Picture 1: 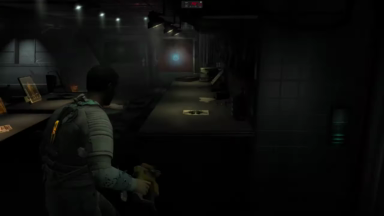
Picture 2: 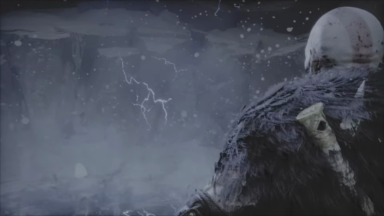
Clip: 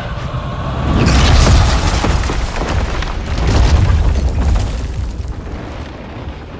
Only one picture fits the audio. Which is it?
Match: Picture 2